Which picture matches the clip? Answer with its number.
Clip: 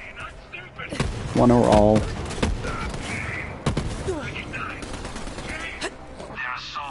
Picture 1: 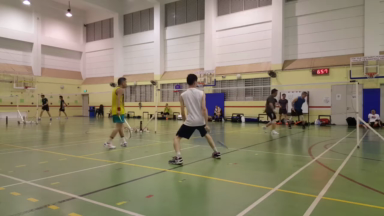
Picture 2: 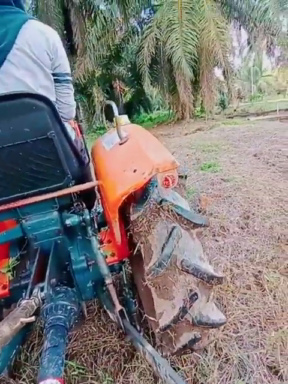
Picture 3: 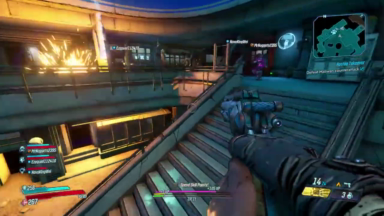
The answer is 3